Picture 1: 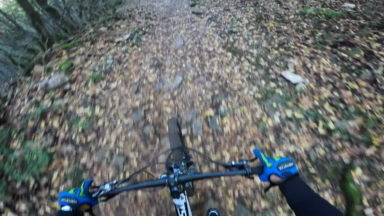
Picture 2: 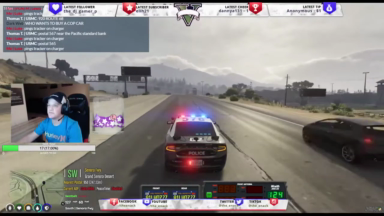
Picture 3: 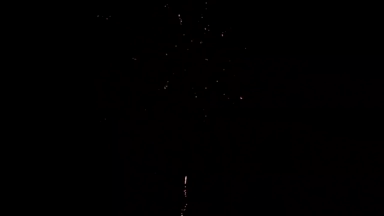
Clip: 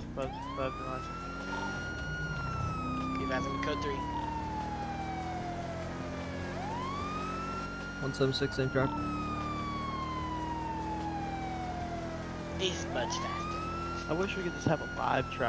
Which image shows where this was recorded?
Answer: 2